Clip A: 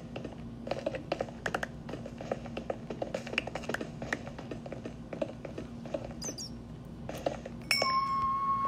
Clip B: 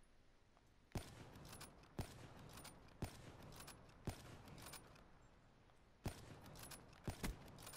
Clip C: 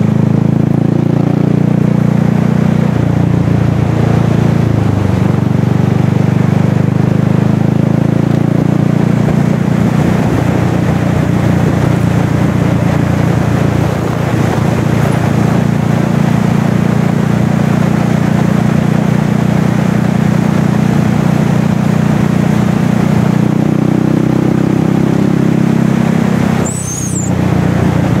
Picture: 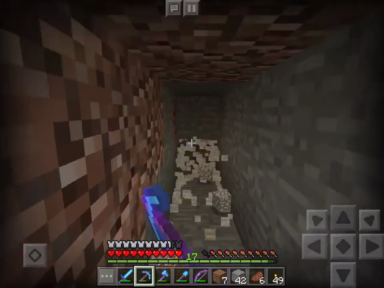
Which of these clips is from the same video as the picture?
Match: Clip A